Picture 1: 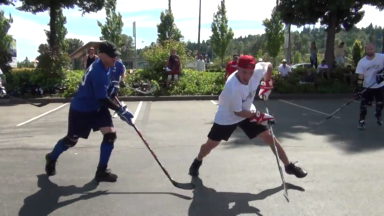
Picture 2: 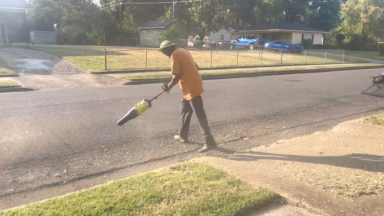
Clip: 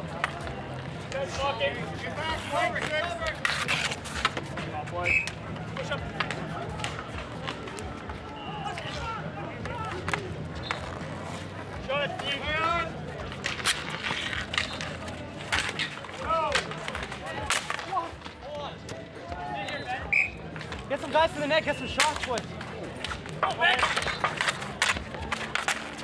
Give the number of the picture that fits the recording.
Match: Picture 1